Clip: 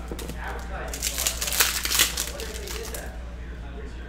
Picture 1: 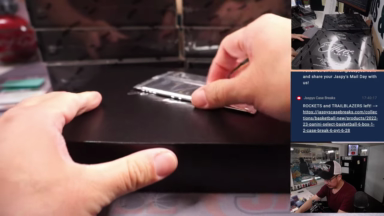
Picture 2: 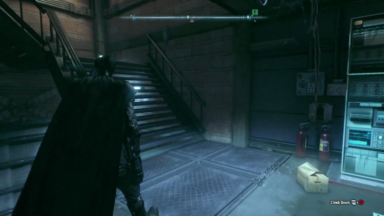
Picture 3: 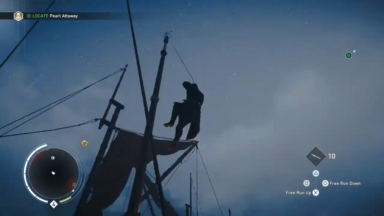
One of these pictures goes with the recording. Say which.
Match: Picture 1